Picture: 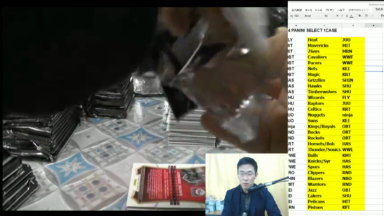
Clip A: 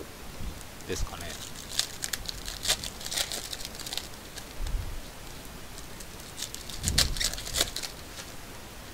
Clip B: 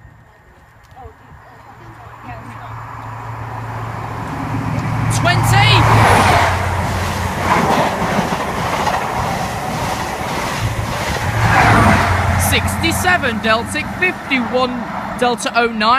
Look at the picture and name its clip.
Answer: A